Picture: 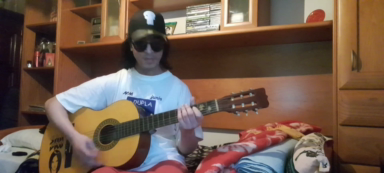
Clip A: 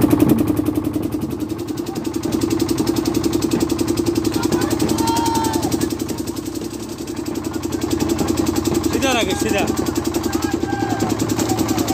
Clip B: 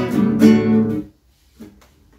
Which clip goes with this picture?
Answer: B